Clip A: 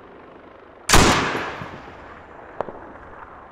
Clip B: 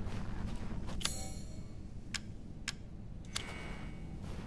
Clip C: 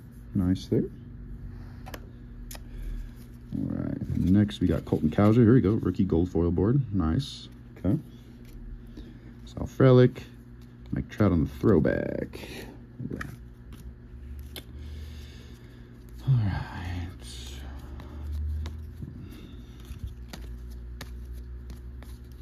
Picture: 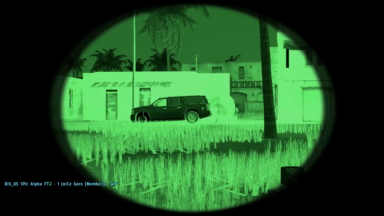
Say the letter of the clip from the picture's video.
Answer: A